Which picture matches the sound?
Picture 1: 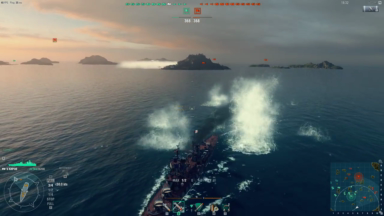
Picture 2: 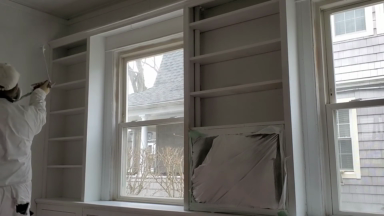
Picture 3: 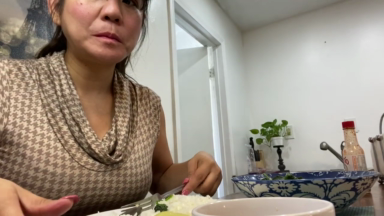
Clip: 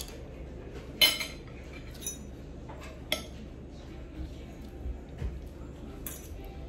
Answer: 3